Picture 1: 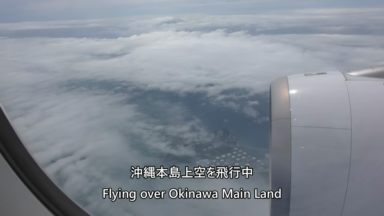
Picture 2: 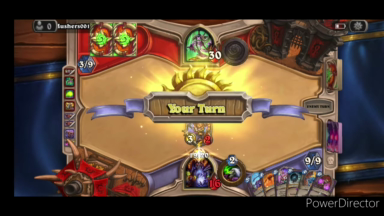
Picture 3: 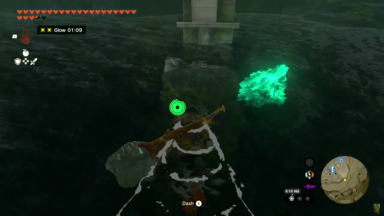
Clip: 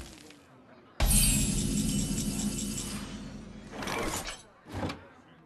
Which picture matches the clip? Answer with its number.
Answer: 2